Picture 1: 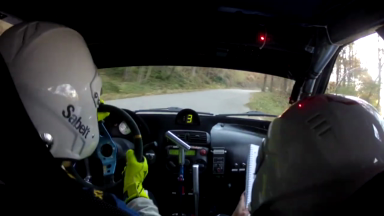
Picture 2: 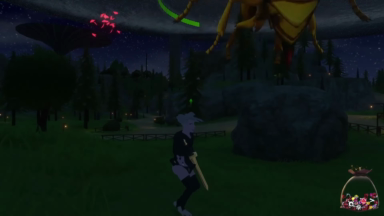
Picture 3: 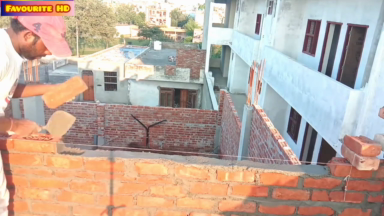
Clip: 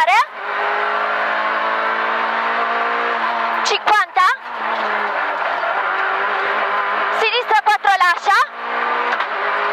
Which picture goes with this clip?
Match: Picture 1